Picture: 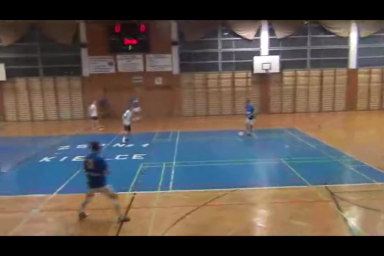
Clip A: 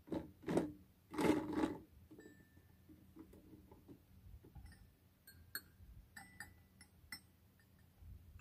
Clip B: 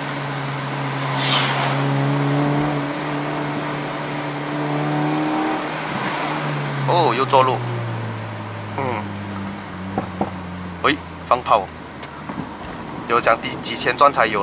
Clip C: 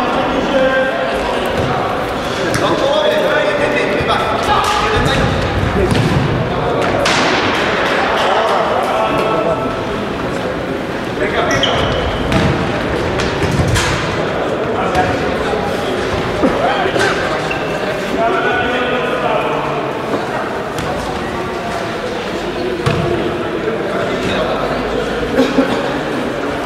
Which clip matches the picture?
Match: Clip C